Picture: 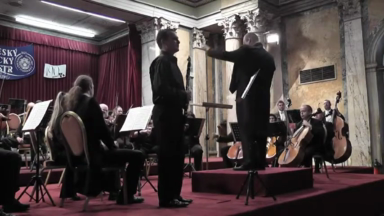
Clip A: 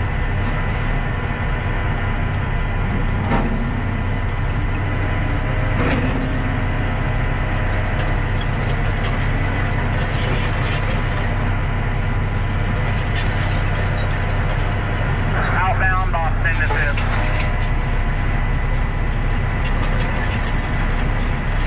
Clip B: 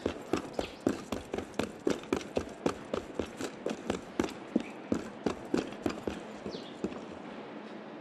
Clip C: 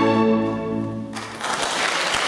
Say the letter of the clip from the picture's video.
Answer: C